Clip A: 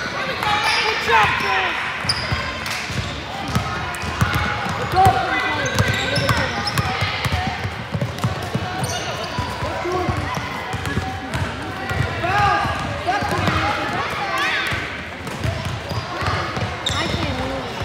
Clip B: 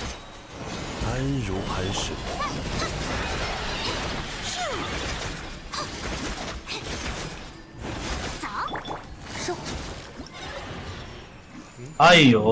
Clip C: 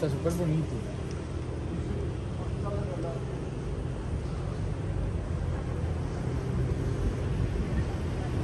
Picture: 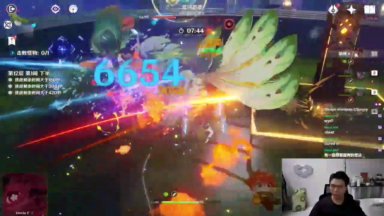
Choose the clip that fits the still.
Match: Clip B